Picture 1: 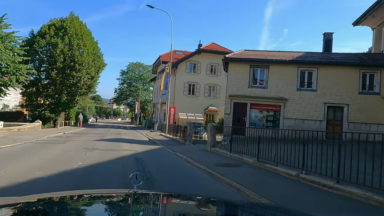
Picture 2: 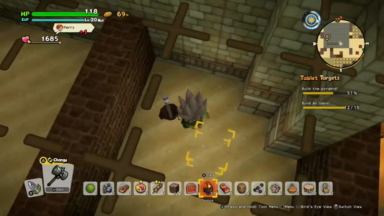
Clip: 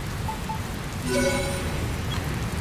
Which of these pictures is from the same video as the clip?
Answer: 2